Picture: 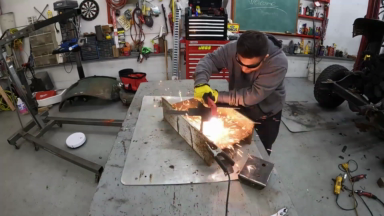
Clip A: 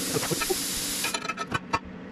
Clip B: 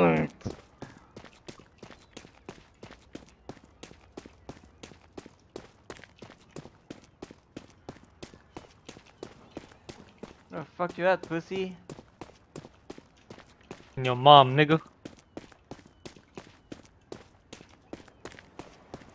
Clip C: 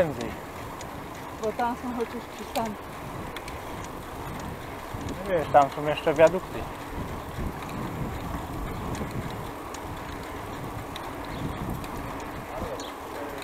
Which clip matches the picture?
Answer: A